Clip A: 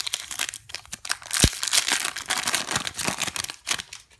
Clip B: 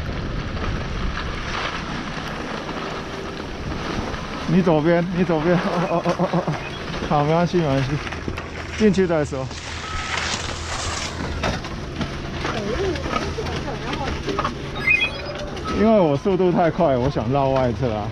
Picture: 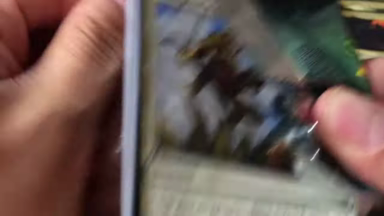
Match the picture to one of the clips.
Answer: A